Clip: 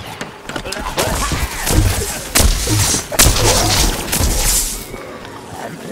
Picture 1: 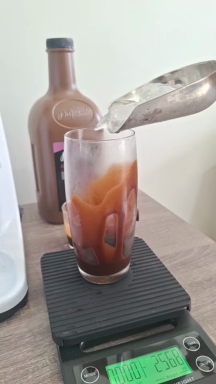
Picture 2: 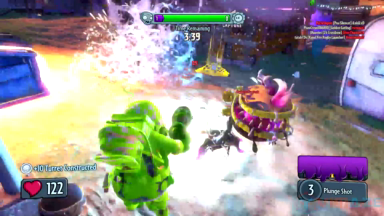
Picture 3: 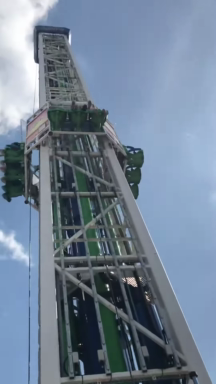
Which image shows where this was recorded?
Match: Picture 2